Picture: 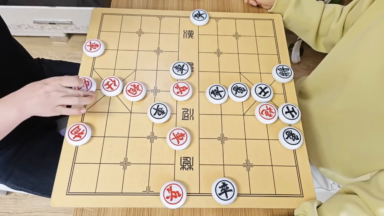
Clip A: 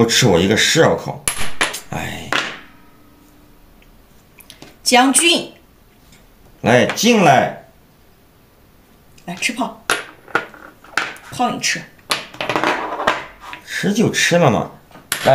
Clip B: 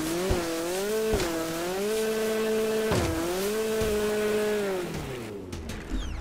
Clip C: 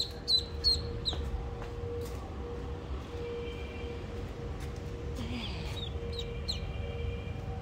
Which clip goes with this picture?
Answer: A